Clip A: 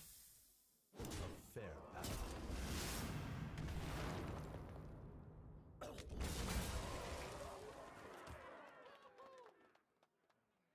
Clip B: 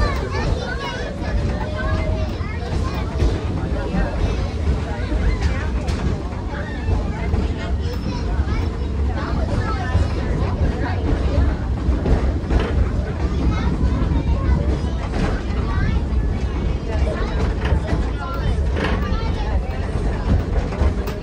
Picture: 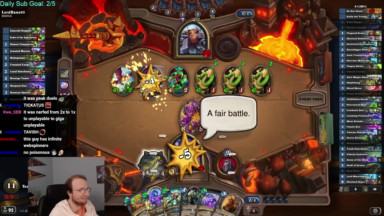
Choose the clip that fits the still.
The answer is A